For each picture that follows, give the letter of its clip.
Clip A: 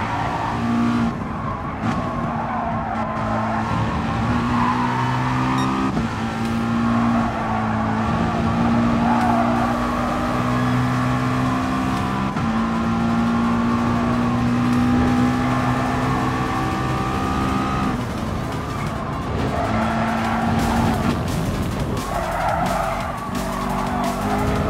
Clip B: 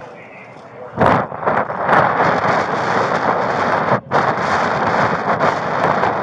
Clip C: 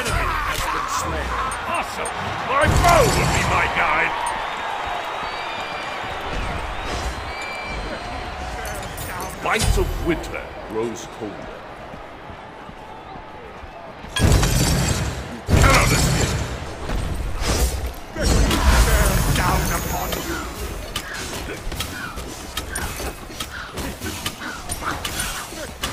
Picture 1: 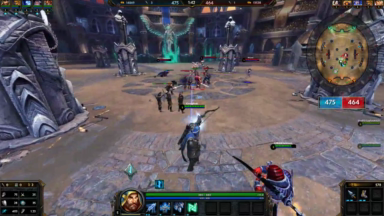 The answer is C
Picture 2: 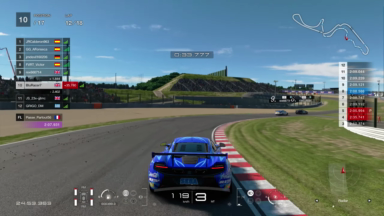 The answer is A